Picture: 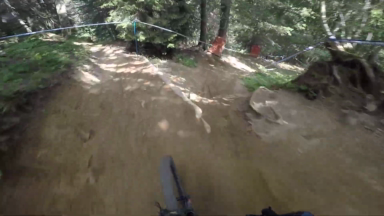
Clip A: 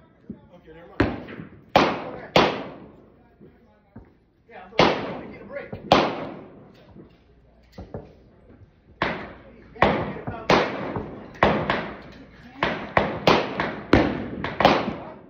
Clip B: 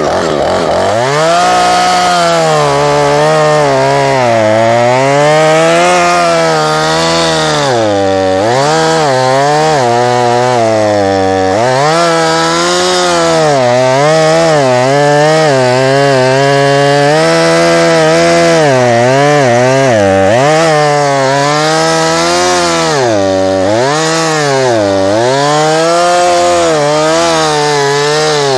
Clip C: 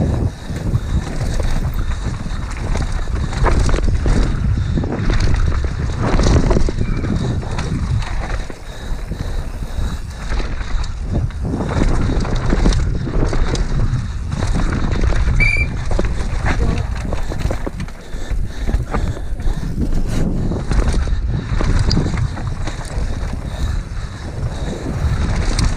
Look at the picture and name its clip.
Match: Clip C